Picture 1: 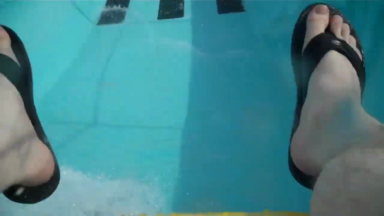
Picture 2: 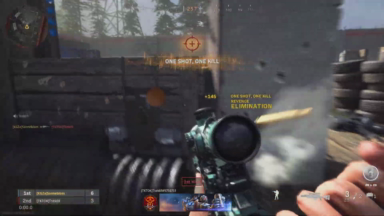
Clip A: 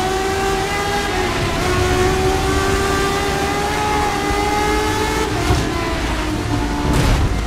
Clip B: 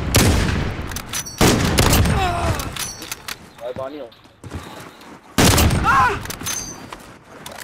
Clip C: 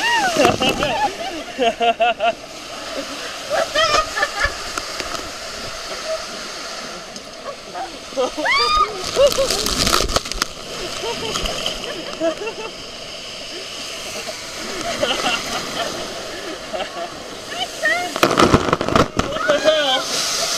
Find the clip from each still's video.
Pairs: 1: C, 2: B